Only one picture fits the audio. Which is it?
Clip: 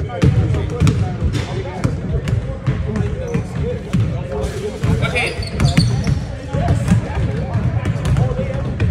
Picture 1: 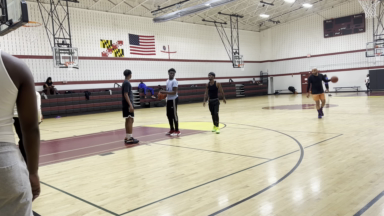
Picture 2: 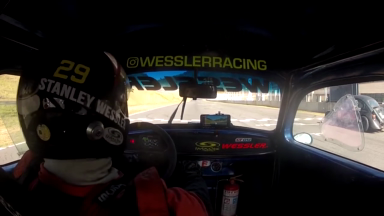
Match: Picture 1